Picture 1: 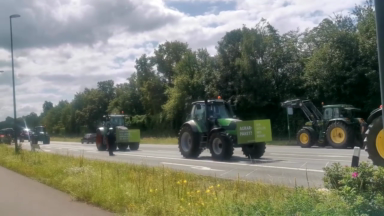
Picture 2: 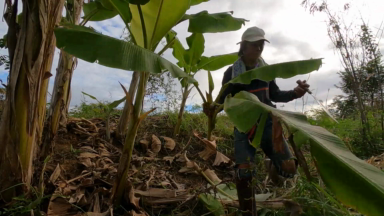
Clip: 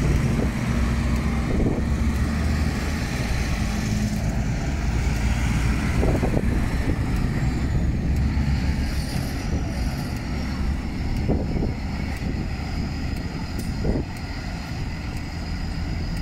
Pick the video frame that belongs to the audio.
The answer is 1